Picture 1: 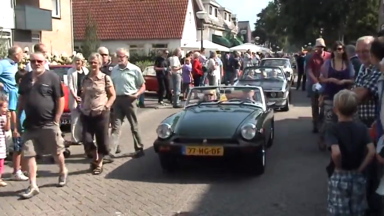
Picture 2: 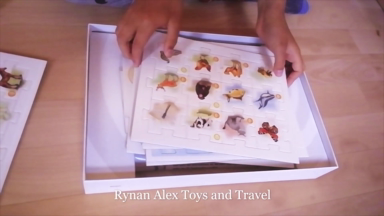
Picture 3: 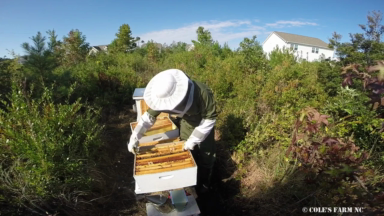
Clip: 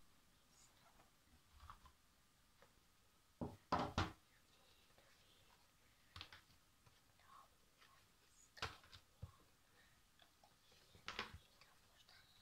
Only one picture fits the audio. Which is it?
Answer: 2